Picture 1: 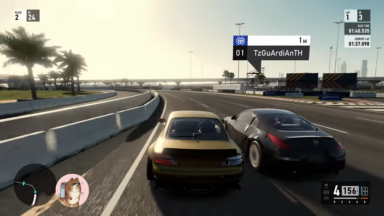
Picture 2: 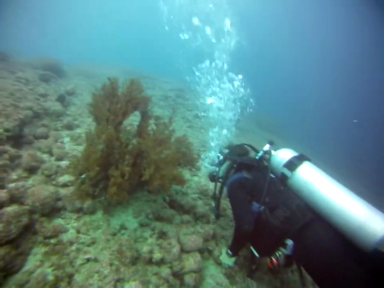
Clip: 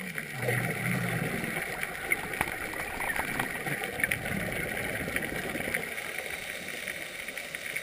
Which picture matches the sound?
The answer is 2